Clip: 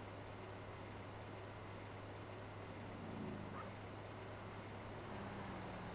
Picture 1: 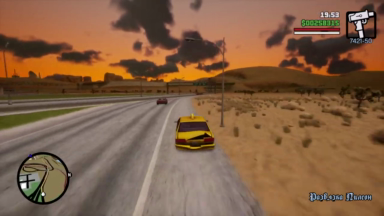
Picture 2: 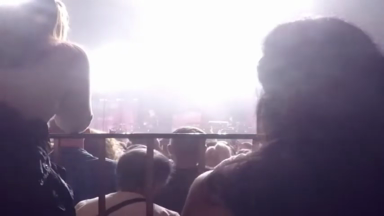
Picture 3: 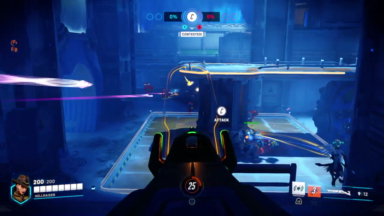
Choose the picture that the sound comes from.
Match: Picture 1